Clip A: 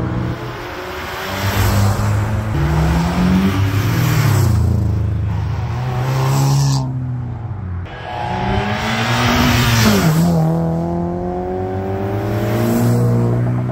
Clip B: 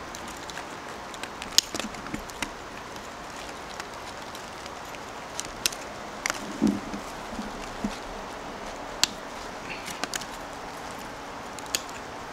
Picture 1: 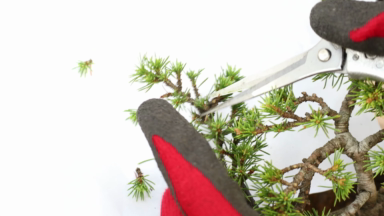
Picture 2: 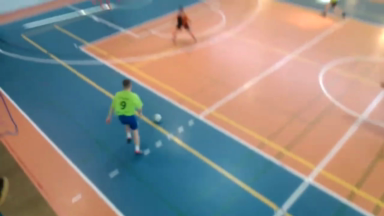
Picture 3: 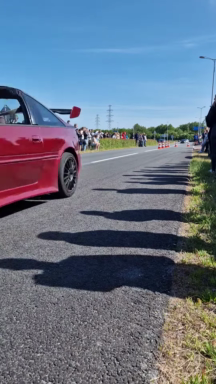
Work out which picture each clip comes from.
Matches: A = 3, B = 1